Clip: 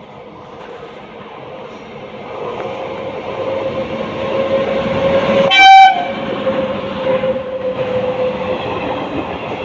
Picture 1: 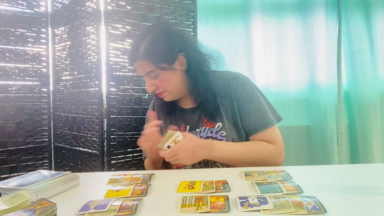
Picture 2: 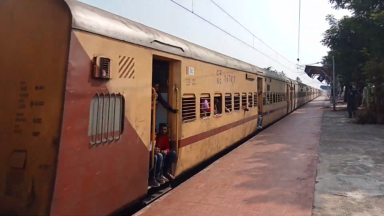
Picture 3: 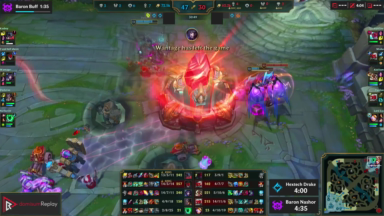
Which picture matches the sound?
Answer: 2